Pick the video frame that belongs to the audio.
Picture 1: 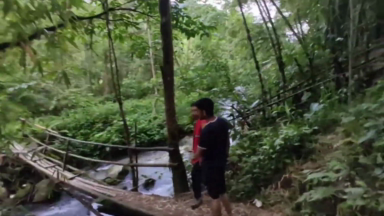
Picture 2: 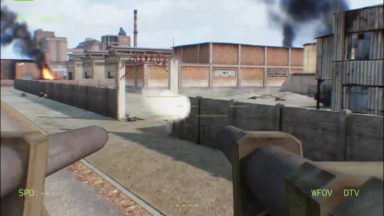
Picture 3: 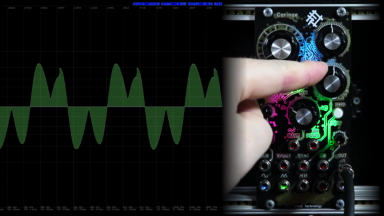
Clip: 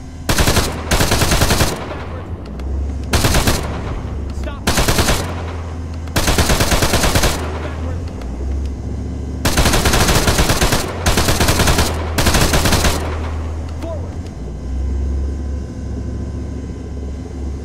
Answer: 2